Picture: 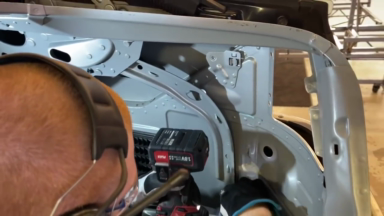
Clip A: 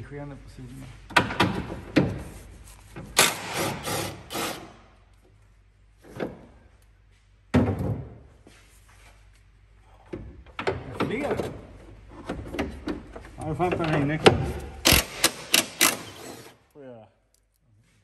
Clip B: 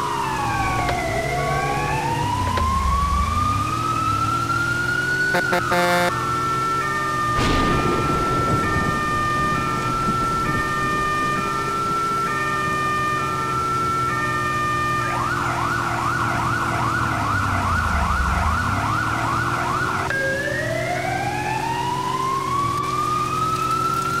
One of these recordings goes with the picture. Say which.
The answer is A